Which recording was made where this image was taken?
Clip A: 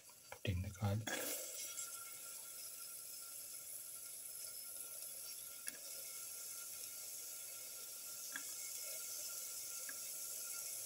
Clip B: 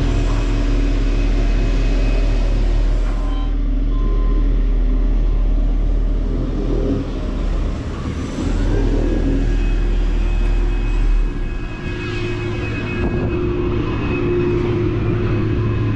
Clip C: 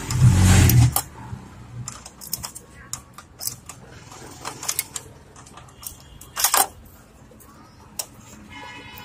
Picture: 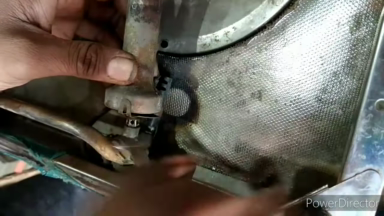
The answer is C